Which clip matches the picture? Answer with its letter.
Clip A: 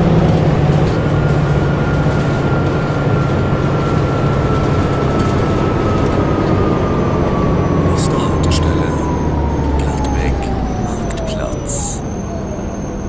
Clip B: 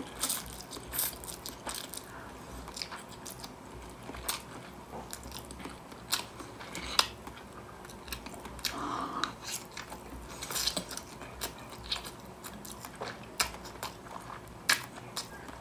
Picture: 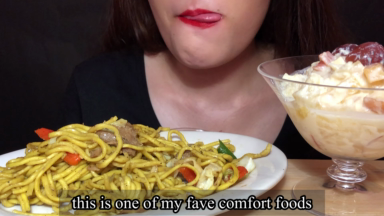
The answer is B